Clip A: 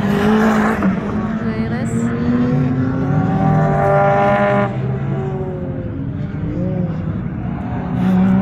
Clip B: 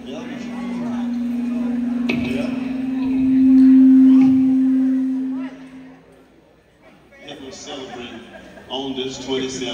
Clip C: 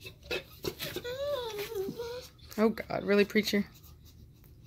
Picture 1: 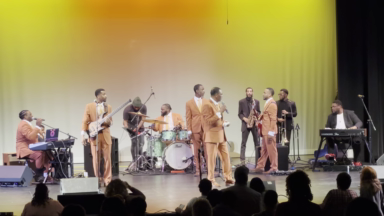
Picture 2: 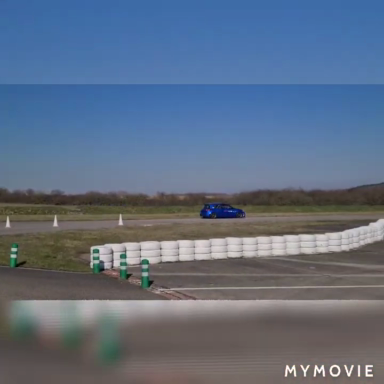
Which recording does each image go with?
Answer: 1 B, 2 A